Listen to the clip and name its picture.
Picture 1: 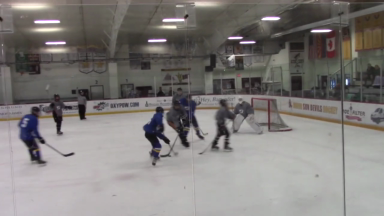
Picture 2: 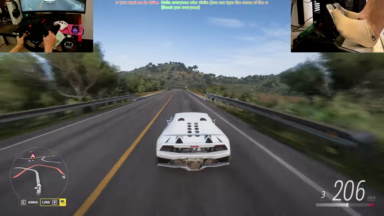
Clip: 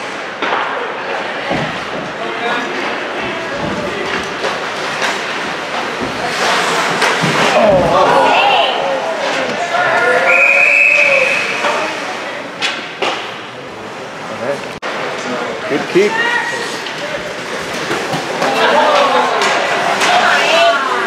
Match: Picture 1